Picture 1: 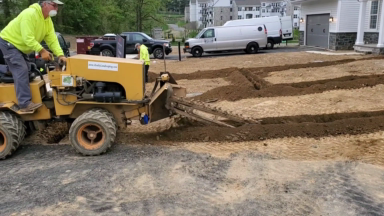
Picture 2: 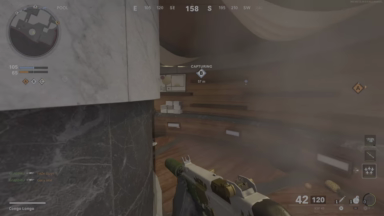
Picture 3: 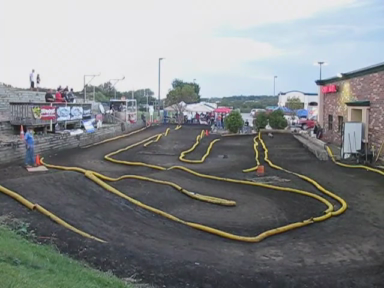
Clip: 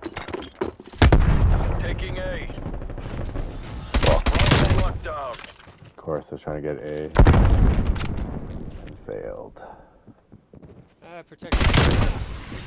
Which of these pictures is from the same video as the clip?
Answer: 2